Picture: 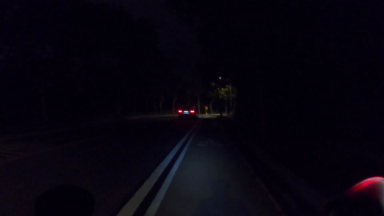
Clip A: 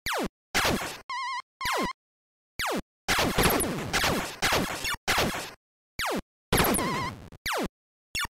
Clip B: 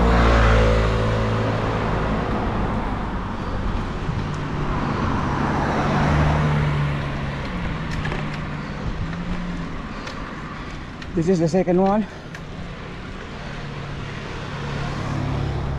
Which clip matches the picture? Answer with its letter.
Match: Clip B